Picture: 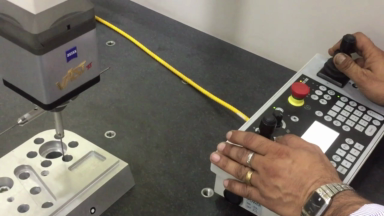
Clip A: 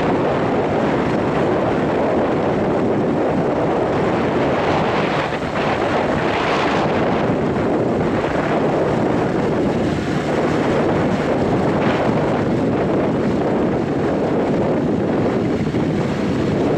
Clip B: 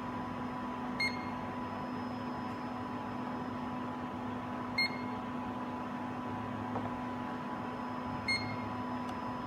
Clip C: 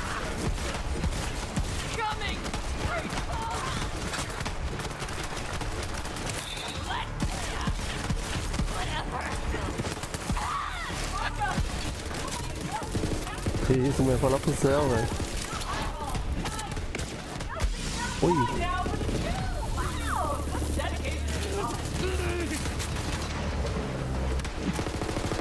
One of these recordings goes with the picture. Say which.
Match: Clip B